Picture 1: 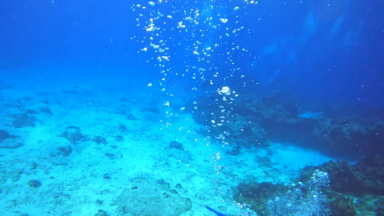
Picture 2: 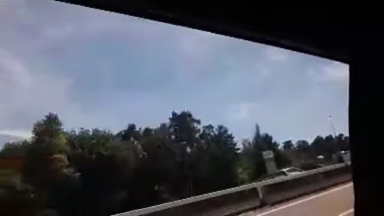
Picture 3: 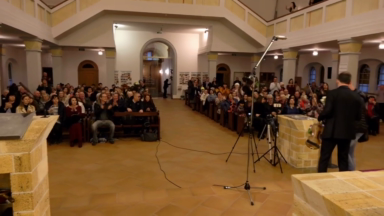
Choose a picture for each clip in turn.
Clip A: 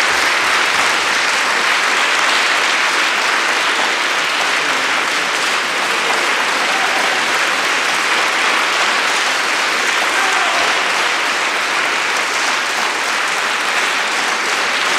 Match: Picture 3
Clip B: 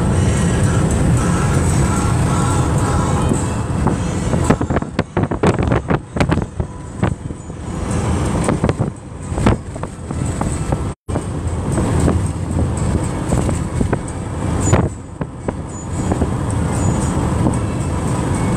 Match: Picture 2